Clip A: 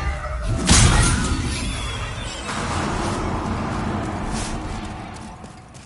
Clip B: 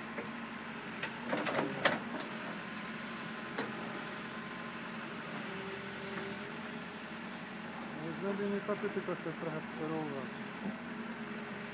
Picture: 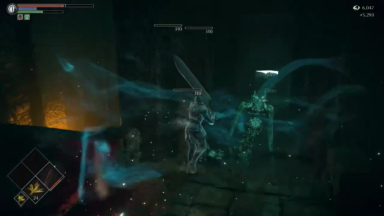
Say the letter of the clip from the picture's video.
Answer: A